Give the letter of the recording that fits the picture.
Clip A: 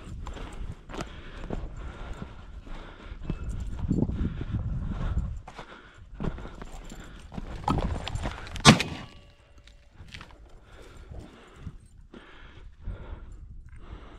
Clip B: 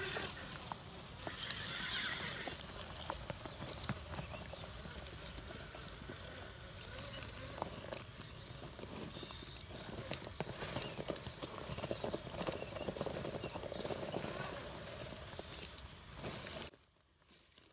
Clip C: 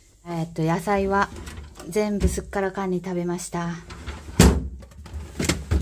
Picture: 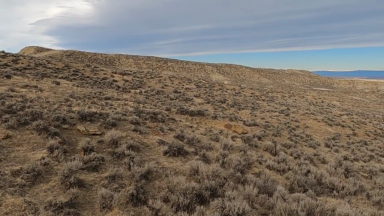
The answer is A